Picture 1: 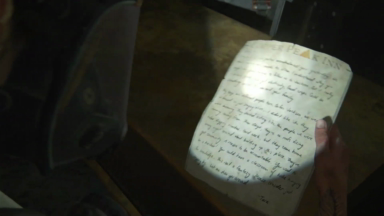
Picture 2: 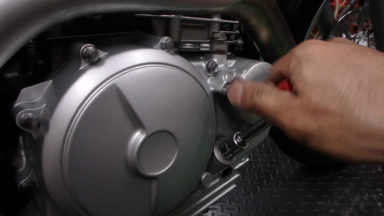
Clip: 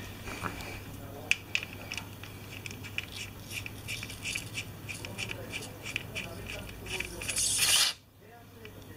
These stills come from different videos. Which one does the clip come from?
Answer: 2